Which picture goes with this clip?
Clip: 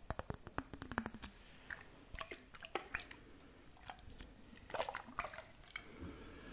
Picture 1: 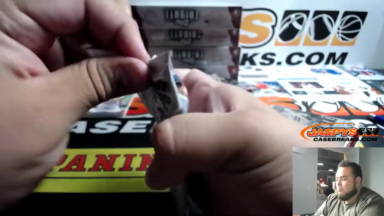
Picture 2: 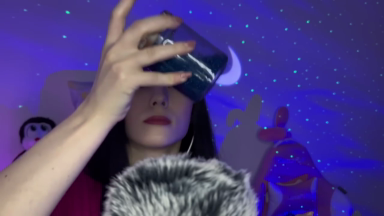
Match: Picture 2